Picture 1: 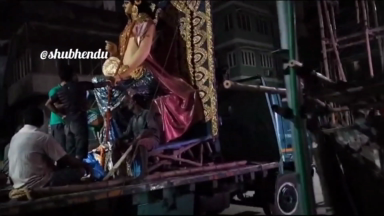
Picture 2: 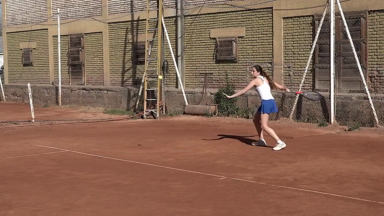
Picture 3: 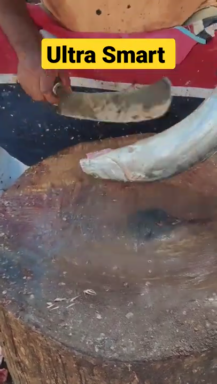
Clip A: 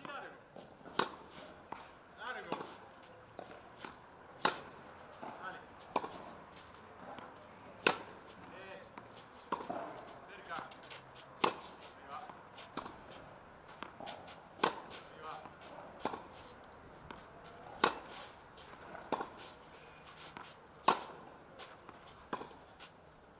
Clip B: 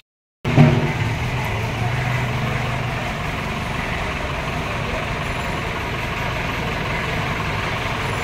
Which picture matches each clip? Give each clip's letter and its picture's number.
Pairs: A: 2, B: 1